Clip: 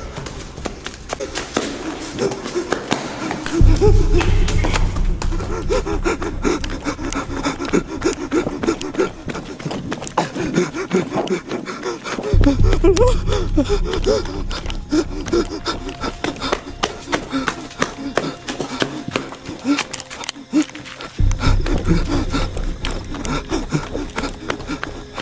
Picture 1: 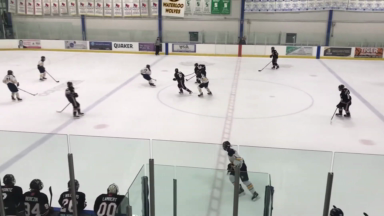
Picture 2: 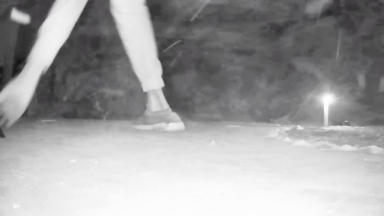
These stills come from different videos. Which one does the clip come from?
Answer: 2